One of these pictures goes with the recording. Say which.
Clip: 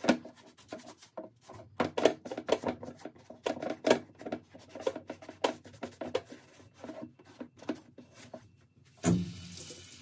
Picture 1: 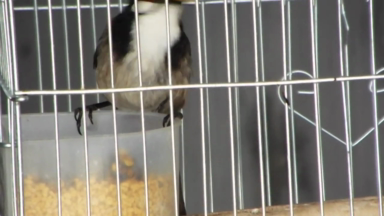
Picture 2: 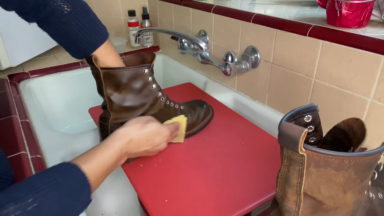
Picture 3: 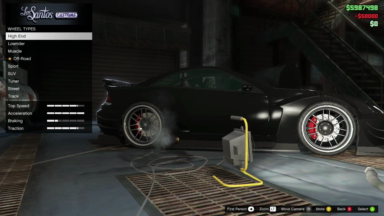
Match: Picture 2